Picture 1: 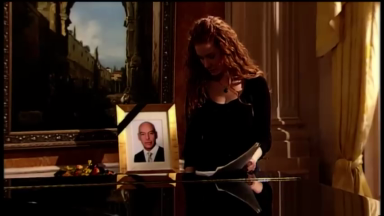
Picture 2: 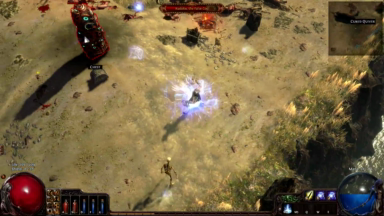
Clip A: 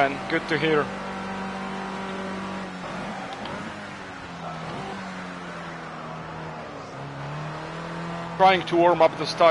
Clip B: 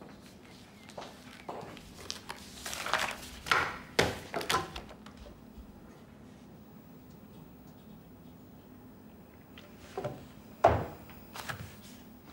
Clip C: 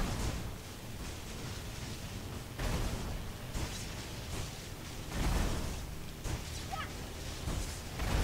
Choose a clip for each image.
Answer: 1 B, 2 C